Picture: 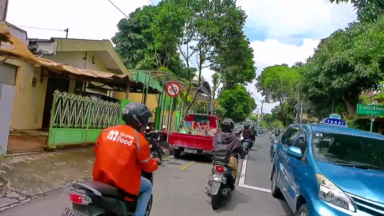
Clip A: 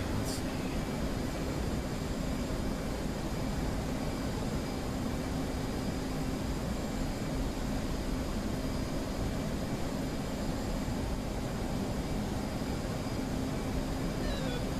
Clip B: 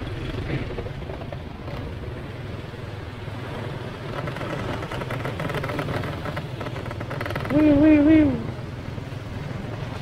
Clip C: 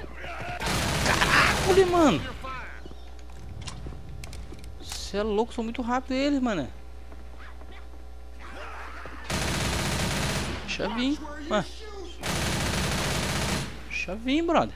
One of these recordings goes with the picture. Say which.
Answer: B